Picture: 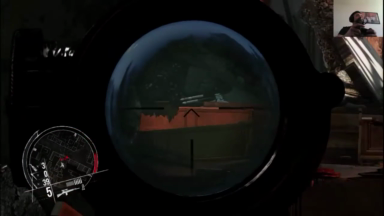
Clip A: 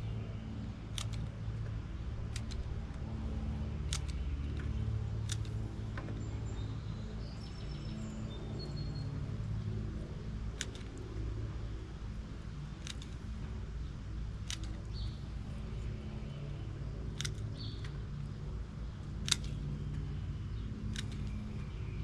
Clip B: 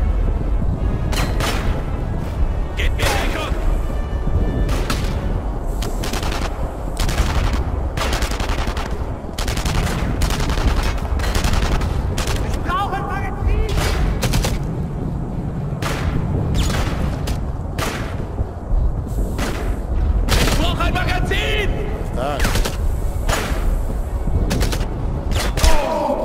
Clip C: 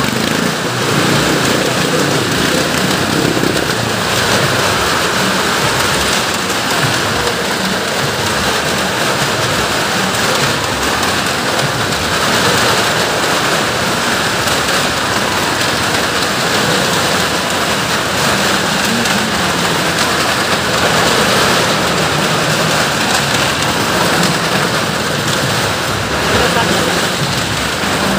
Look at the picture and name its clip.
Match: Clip B